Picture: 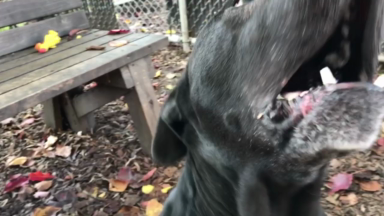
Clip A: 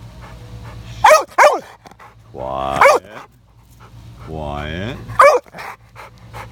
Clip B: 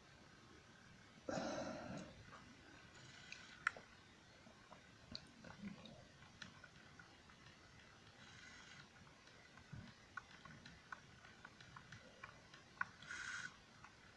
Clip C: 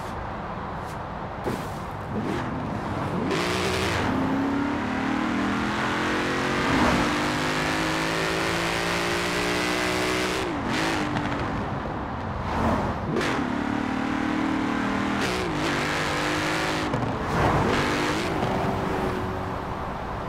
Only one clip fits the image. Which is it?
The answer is A